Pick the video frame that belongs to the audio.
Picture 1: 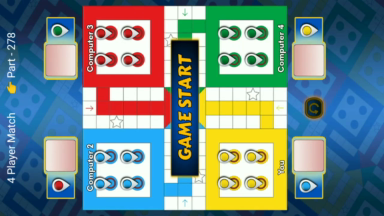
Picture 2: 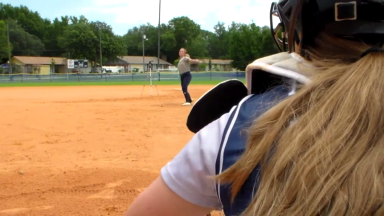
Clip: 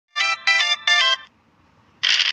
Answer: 1